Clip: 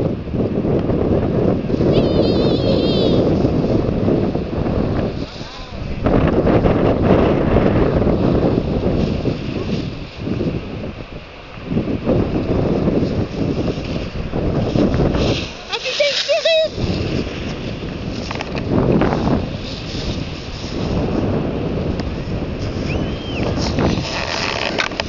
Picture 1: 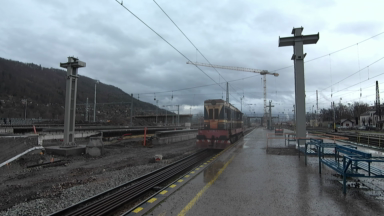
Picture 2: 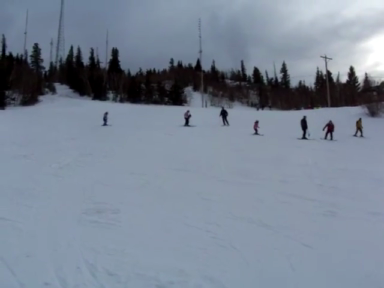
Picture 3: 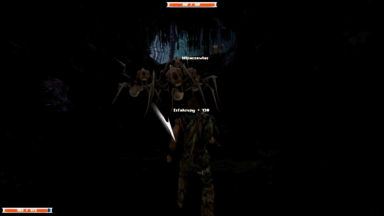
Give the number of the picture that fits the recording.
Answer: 2